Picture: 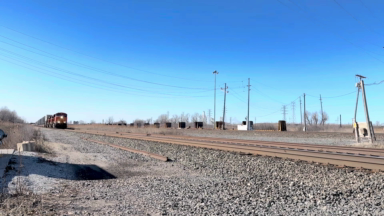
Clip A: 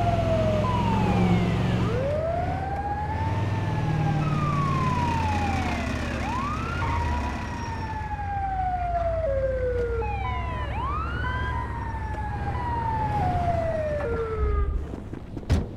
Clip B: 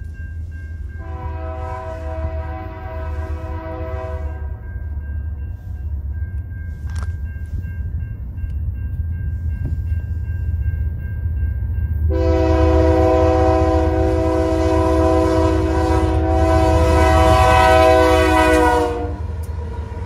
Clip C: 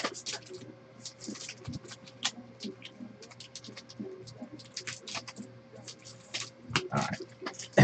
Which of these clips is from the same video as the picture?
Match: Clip B